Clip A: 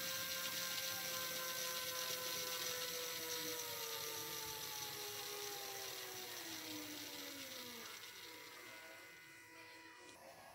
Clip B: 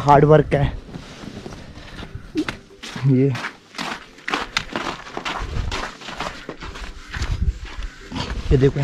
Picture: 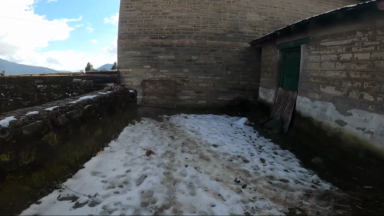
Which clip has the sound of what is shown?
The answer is B